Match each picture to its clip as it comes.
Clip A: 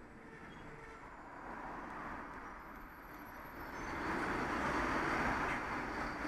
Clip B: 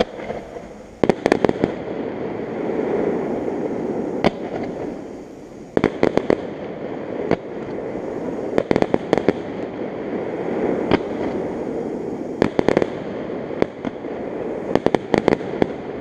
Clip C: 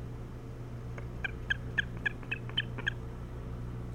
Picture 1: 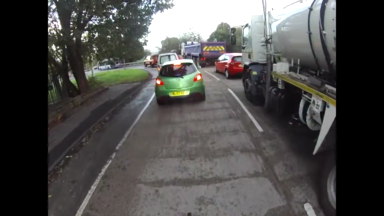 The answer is A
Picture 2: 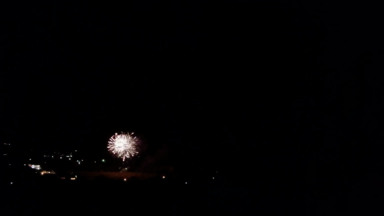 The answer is B